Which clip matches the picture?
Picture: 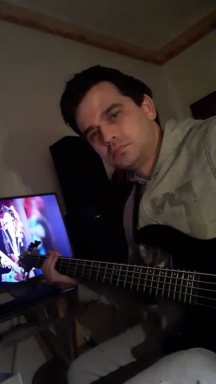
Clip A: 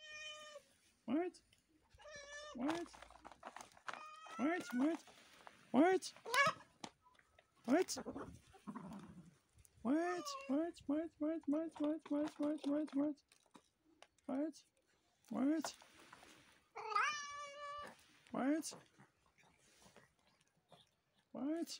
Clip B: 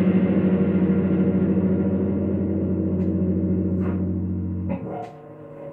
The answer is B